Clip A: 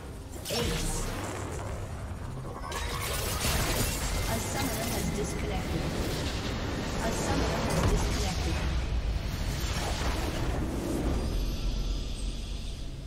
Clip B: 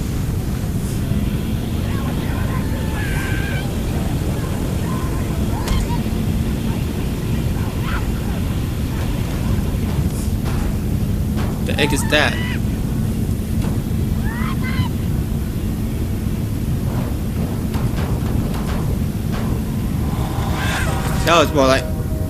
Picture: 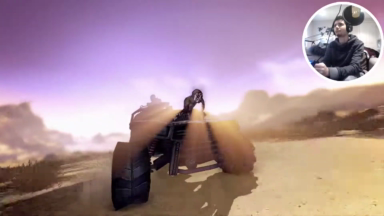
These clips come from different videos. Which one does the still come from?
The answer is B